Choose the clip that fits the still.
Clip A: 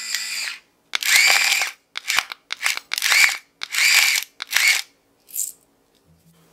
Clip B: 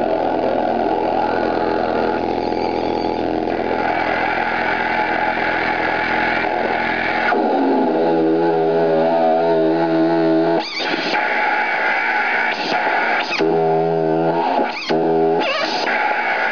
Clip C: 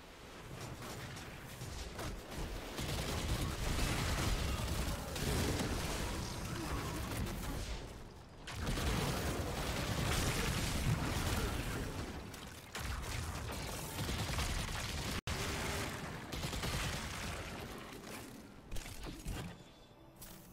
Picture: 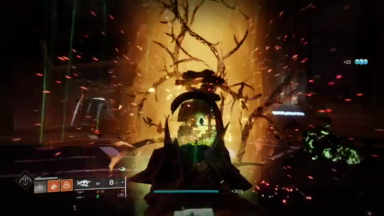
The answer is C